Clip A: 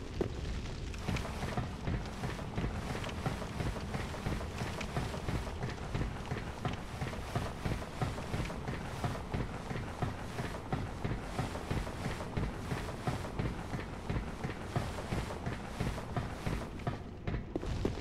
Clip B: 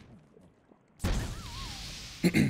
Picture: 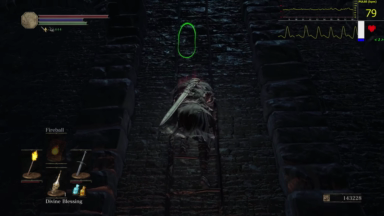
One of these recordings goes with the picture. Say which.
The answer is A